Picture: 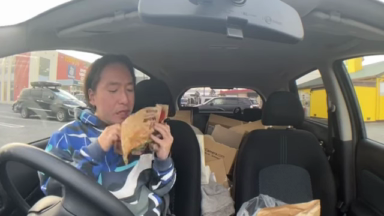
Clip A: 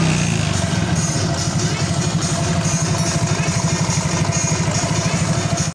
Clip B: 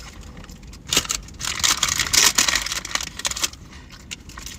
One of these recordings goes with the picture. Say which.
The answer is B